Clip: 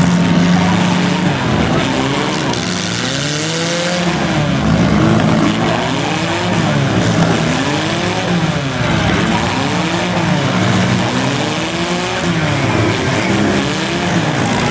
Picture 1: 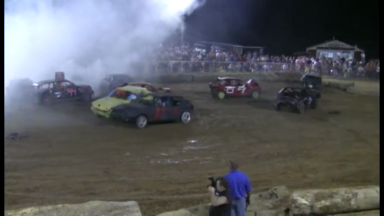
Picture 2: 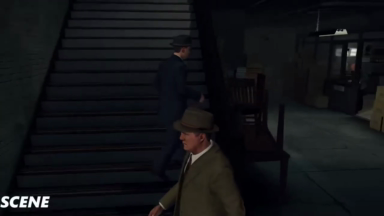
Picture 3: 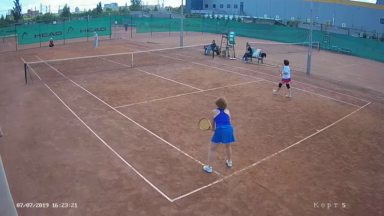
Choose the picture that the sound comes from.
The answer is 1